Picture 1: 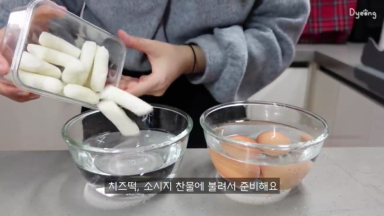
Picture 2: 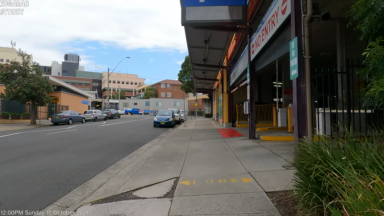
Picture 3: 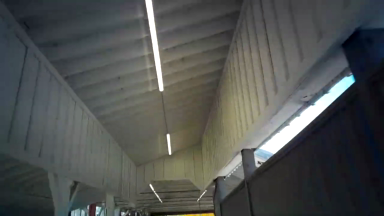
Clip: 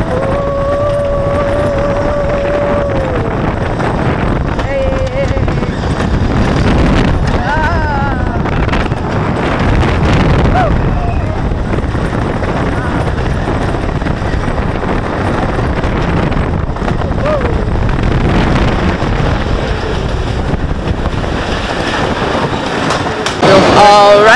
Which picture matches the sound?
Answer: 3